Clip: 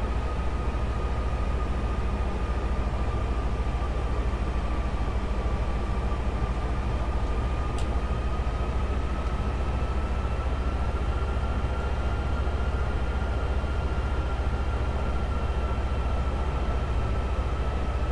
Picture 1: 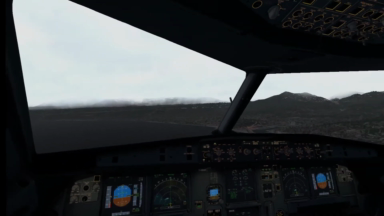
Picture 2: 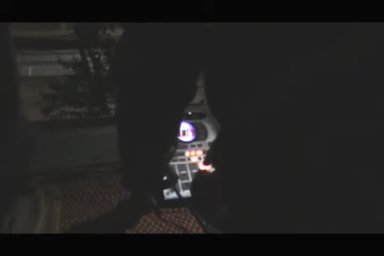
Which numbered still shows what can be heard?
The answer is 1